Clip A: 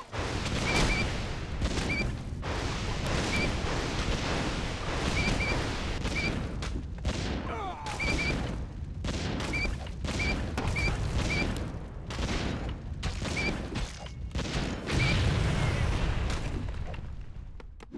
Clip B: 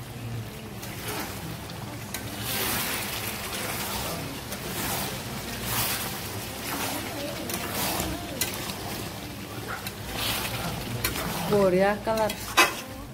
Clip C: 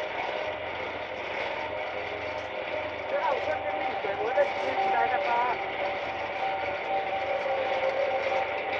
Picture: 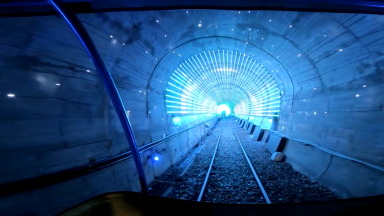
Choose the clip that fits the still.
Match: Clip C